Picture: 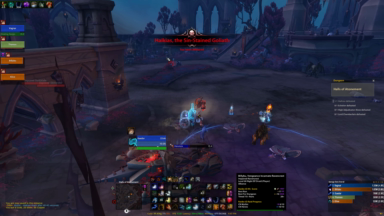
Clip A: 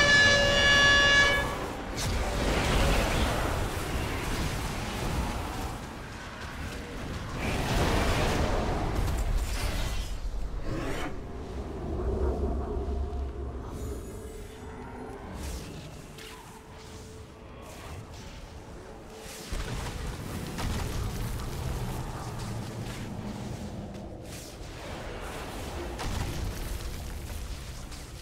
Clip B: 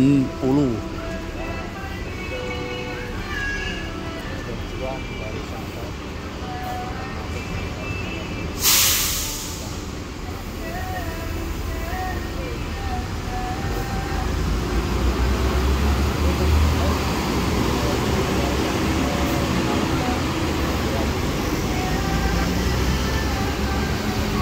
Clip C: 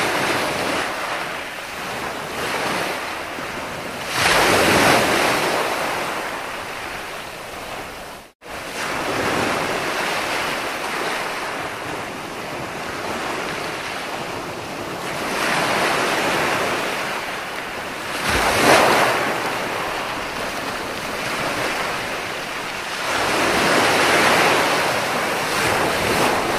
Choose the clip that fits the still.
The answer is A